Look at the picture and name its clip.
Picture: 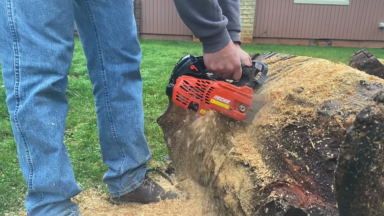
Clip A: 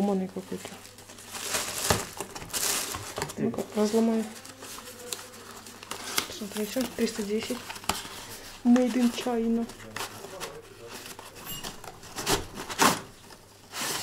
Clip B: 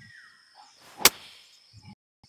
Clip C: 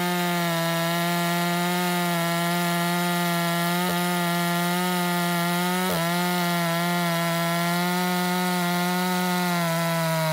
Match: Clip C